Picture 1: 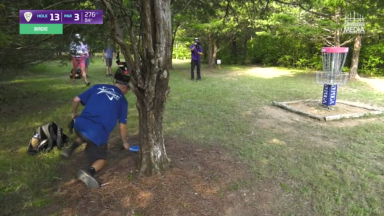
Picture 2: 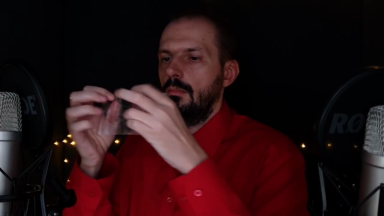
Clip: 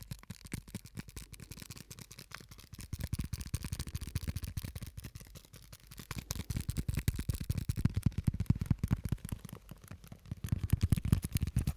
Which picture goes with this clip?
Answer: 2